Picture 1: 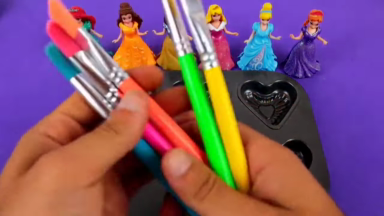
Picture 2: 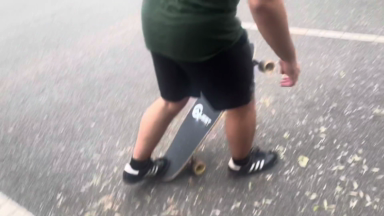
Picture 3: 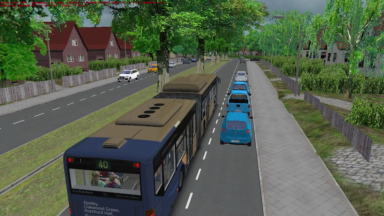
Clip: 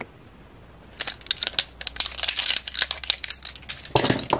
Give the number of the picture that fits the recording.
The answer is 1